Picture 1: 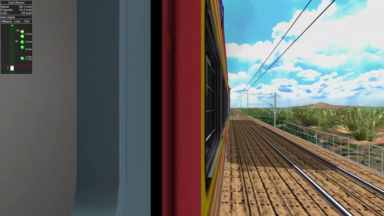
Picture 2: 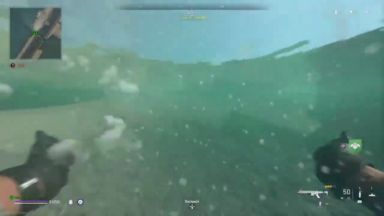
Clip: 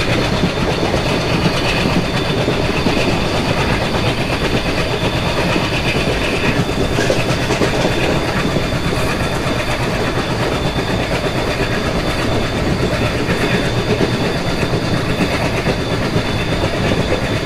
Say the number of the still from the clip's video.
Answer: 1